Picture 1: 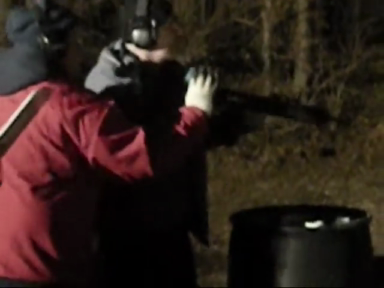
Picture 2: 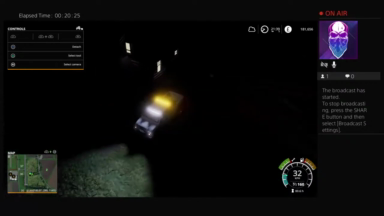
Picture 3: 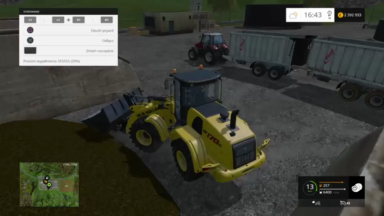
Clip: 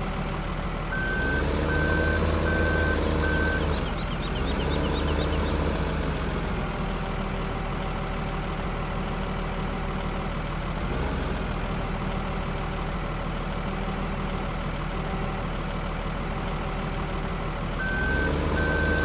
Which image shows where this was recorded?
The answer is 3